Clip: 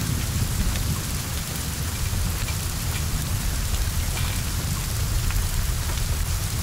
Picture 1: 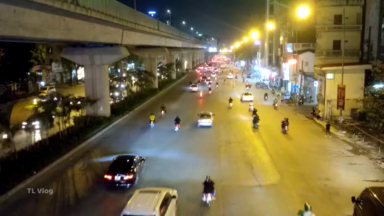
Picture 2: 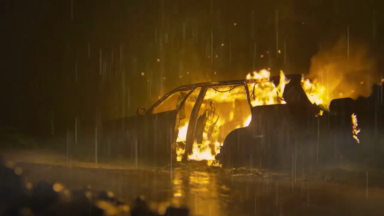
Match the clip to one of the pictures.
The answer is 2